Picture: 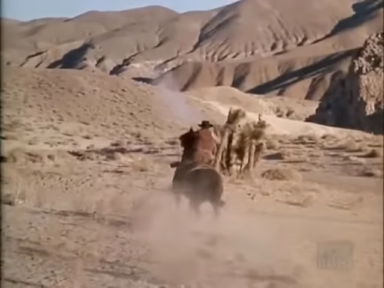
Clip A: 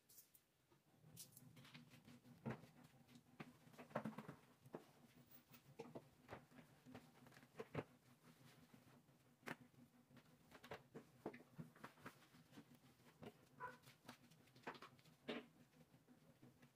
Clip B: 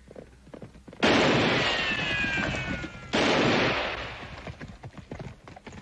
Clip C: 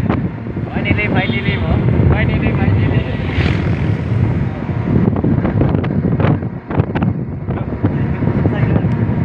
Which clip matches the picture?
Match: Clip B